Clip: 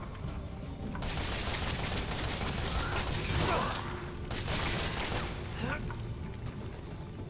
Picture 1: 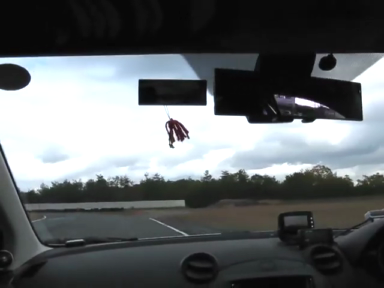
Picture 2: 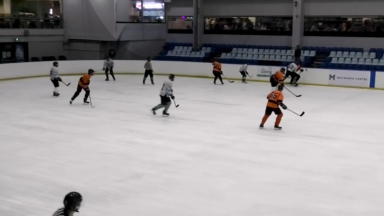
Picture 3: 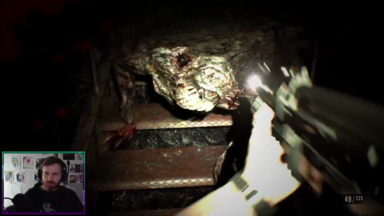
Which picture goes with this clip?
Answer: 3